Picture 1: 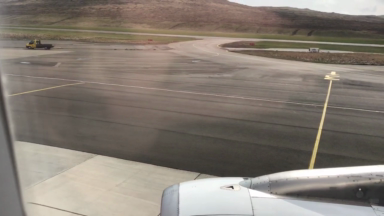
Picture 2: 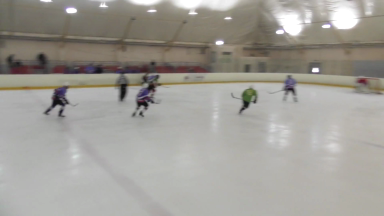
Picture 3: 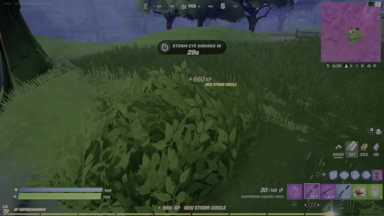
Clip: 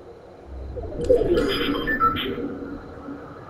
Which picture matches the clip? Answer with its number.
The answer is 3